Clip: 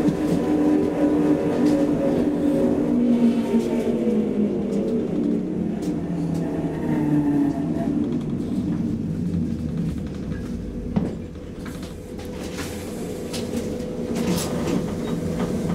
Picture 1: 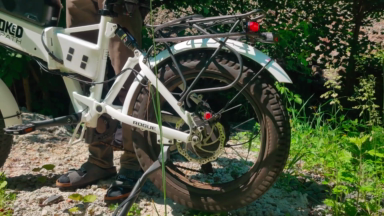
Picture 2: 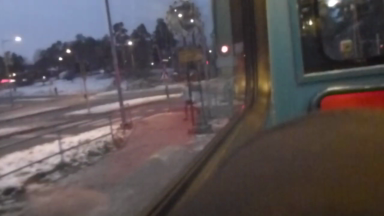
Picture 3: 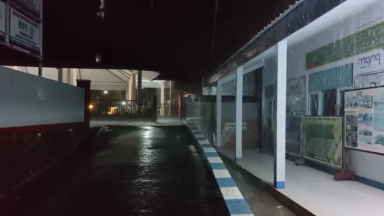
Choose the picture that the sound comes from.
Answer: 2